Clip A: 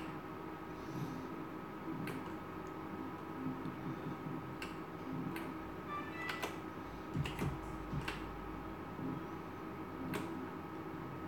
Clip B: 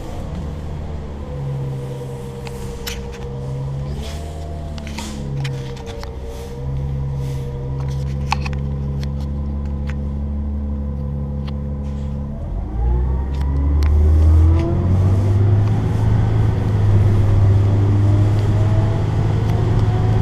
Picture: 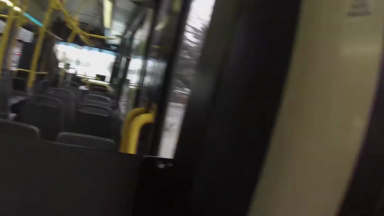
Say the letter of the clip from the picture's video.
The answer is B